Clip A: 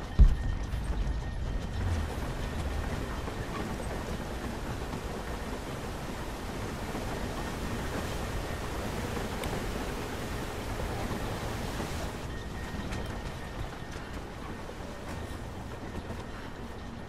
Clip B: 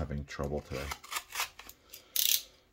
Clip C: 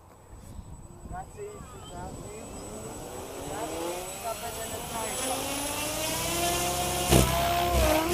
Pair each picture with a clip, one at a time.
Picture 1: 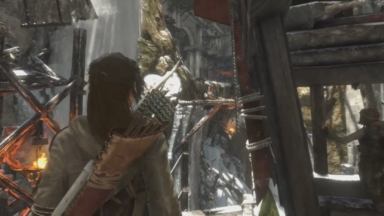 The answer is A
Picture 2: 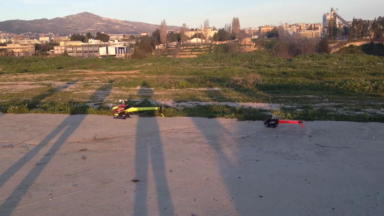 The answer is C